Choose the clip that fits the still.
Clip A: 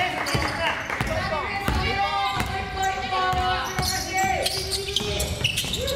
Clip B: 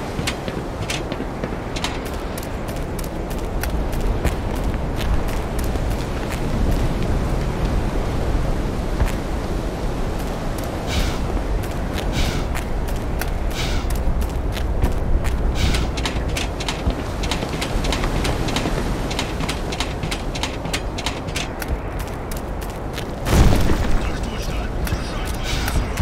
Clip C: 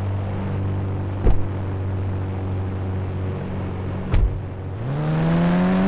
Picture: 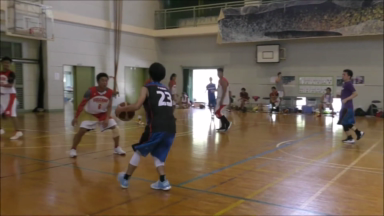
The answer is A